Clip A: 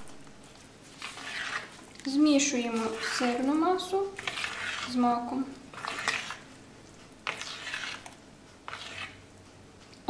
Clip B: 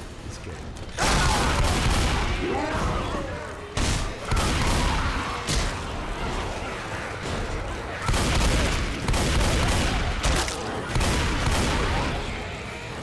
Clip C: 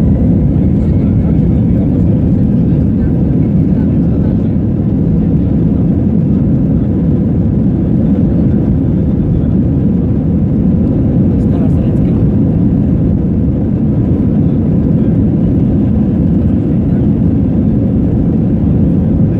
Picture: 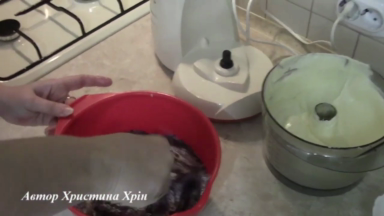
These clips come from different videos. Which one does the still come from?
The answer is A